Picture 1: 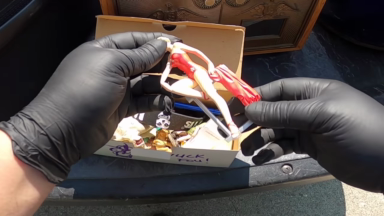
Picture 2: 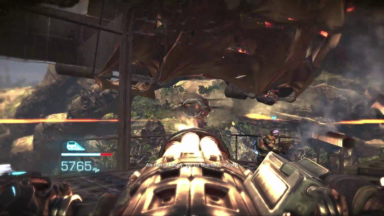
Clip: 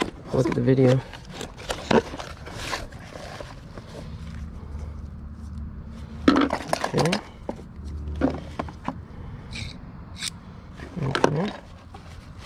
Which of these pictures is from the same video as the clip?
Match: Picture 1